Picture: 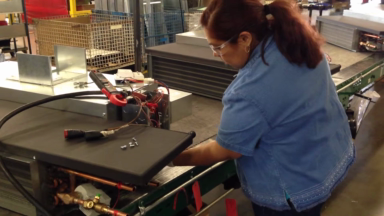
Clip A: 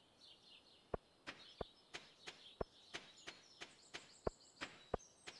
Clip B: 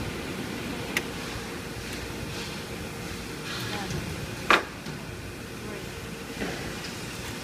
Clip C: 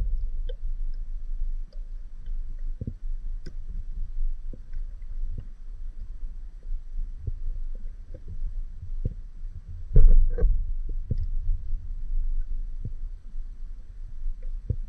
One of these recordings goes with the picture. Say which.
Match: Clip B